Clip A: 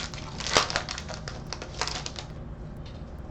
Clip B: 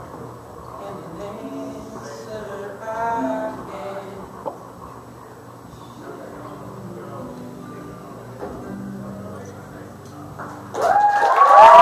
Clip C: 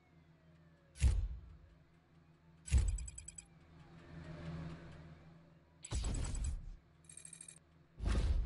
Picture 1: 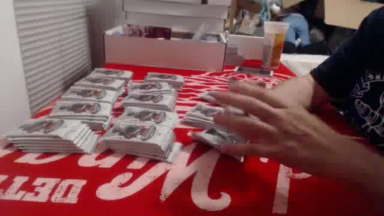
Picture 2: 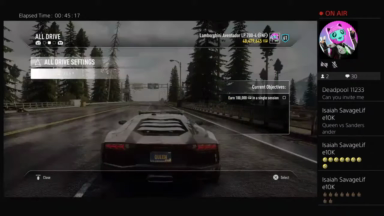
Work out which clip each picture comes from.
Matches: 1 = A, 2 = C